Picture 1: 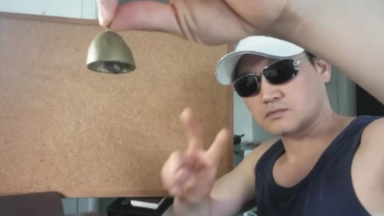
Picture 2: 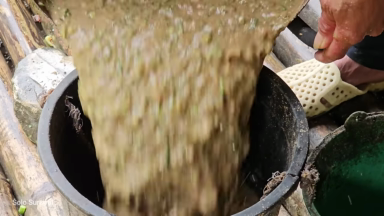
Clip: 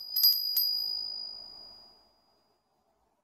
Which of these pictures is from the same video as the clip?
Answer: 1